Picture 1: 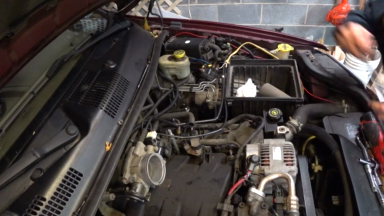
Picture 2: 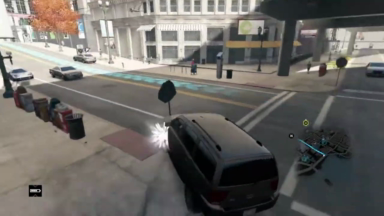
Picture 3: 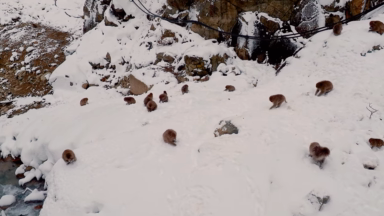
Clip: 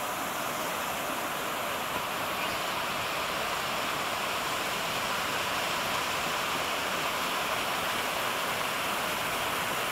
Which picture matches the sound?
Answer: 3